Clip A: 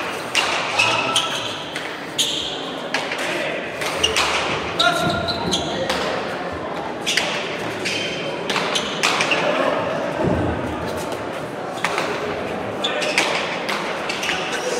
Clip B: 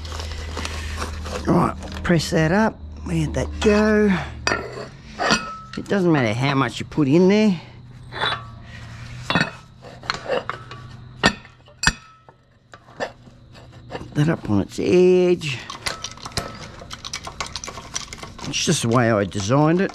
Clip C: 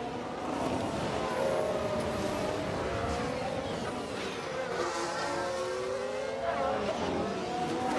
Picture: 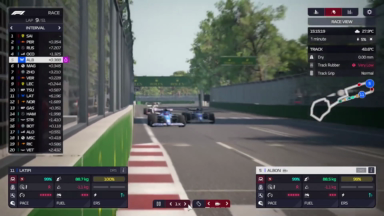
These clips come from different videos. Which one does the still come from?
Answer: C